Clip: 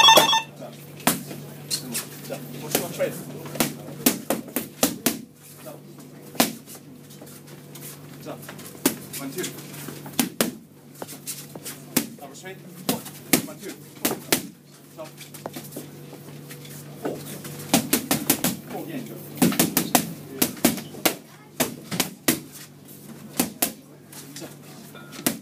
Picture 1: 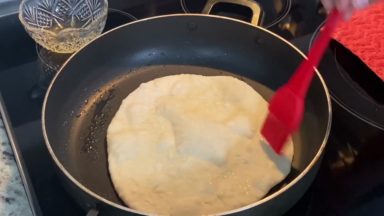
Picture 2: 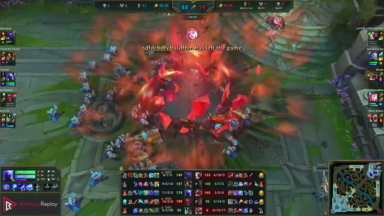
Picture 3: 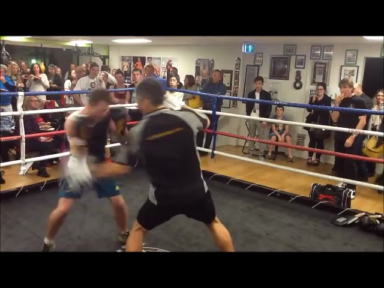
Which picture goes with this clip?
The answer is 3